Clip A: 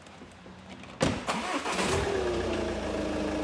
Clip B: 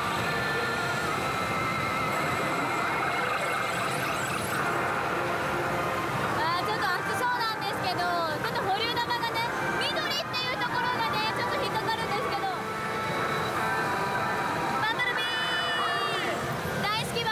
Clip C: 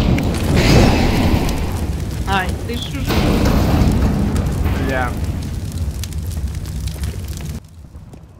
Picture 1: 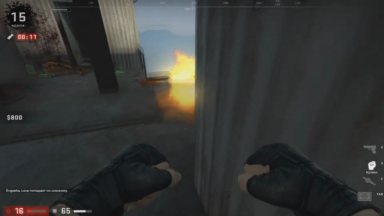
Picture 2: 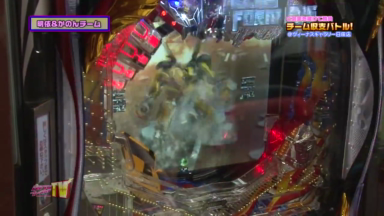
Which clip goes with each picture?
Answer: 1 C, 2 B